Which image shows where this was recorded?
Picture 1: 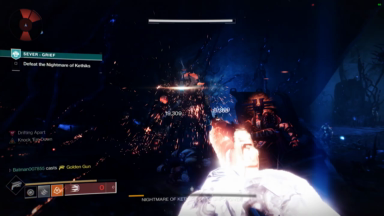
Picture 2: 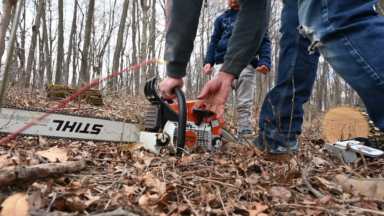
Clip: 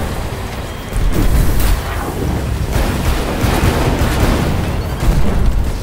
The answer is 1